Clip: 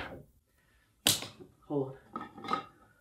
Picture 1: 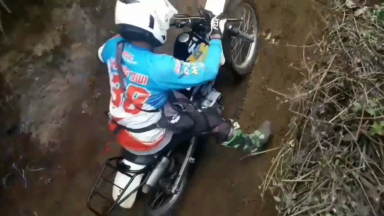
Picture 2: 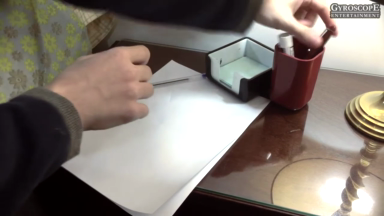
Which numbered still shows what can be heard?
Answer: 2